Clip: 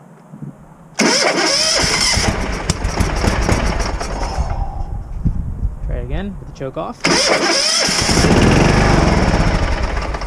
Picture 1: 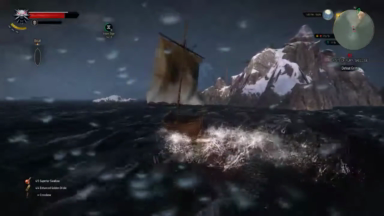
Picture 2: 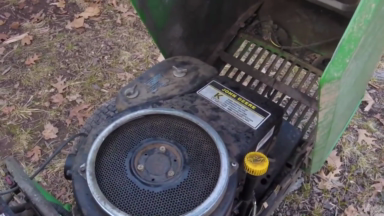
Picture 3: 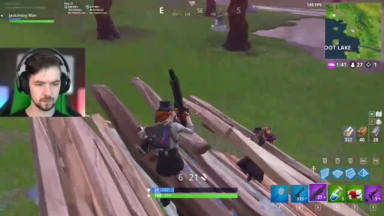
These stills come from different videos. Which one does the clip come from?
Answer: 2